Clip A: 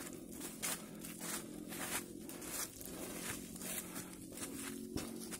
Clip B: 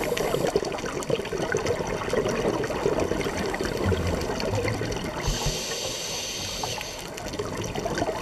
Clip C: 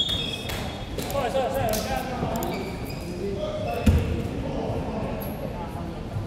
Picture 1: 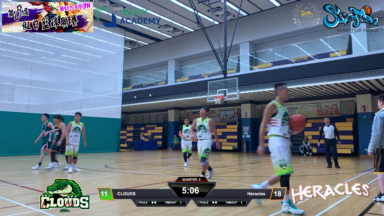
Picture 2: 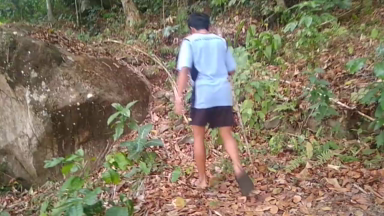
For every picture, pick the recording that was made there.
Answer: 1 C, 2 A